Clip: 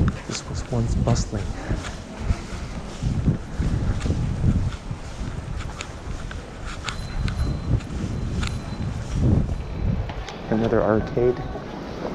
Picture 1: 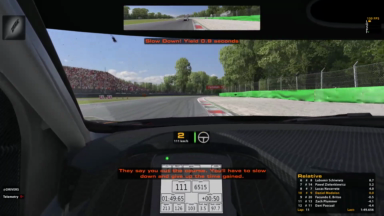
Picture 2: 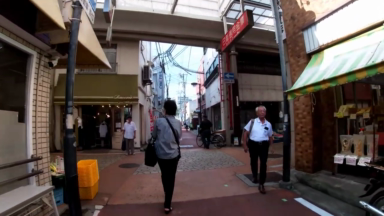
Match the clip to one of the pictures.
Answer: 2